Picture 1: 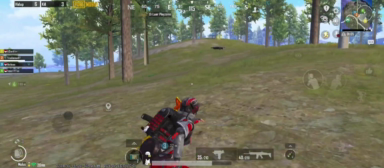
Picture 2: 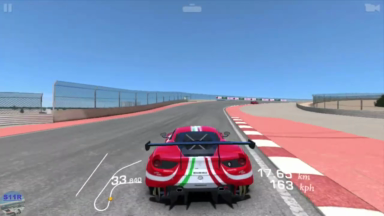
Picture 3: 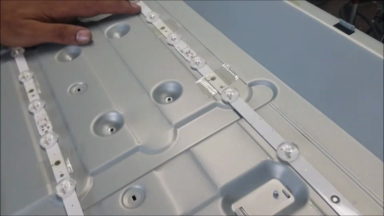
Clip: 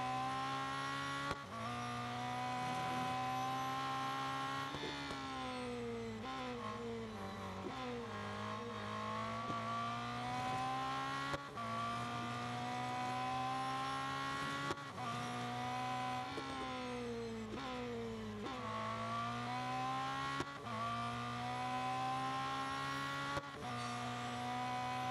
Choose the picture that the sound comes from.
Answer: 2